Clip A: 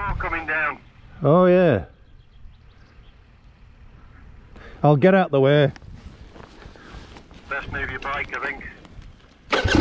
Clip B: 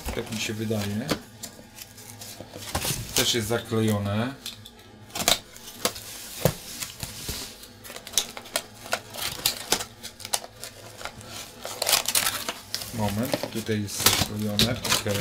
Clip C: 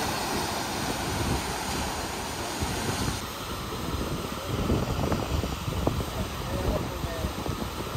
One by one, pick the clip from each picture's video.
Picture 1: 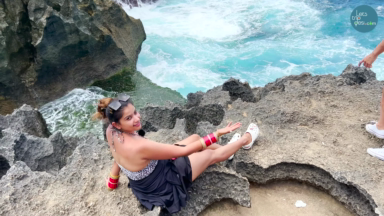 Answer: C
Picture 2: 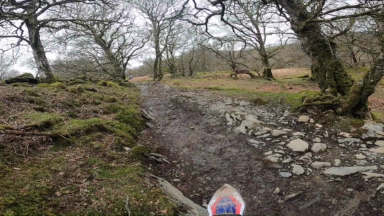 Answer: A